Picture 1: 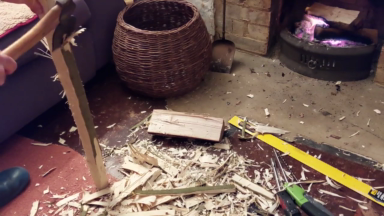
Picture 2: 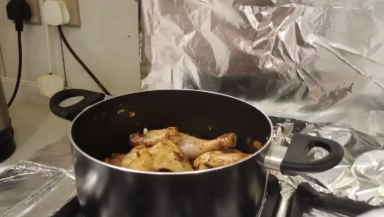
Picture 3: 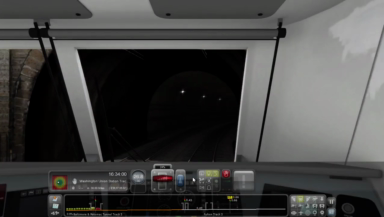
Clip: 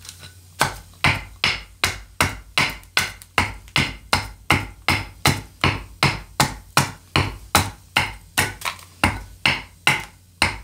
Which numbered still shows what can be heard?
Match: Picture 1